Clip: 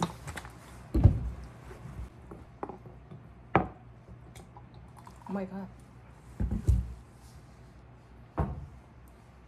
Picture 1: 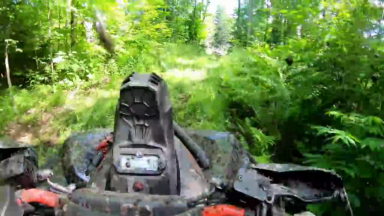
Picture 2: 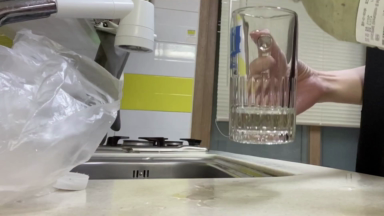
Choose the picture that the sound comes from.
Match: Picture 2